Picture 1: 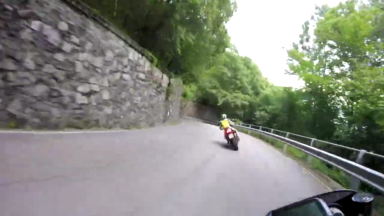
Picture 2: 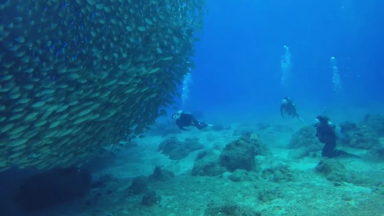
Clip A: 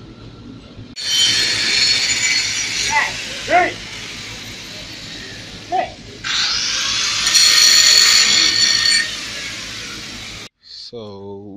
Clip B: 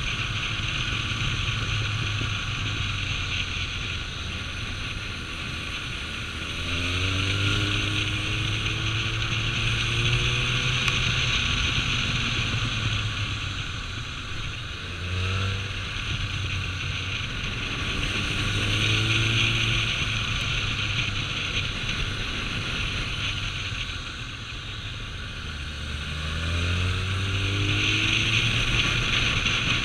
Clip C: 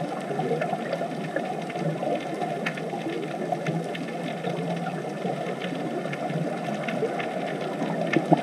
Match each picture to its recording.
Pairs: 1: B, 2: C